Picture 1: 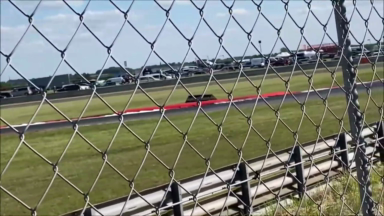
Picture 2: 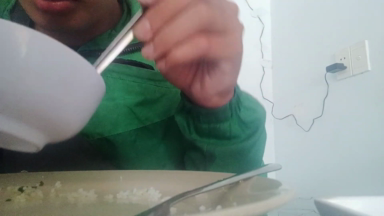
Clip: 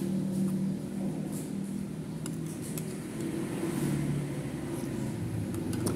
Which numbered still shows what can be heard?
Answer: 2